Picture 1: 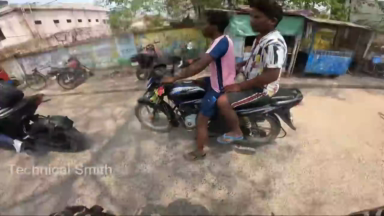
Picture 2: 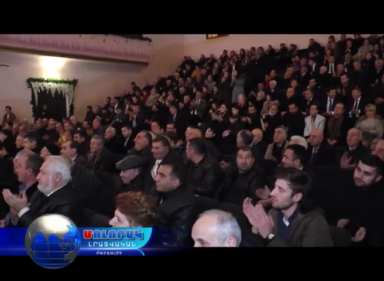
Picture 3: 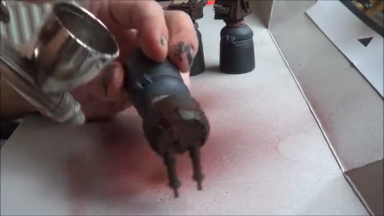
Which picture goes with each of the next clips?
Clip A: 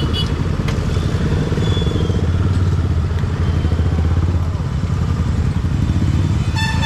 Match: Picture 1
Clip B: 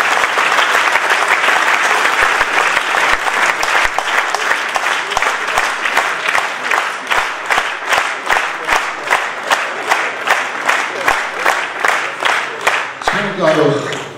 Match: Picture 2